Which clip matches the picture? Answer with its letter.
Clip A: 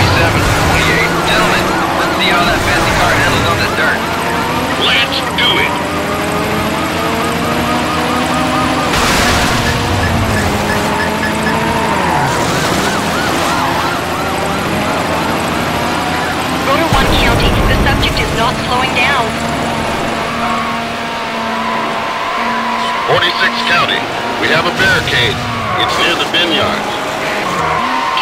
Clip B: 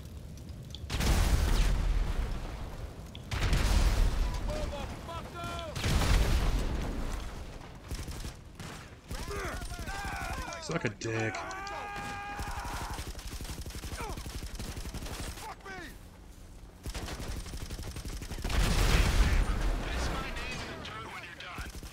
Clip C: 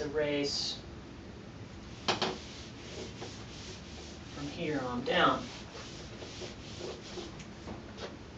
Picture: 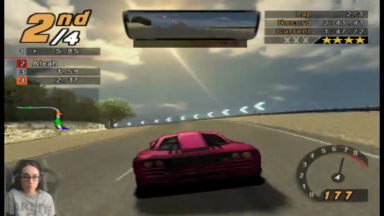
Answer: A